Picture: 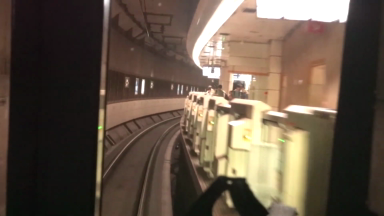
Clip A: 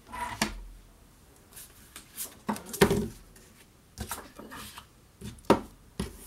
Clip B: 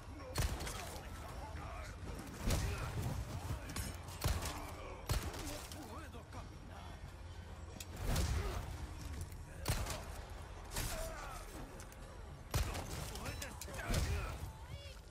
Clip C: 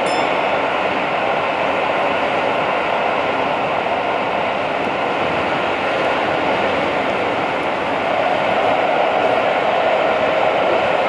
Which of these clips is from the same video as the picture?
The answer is C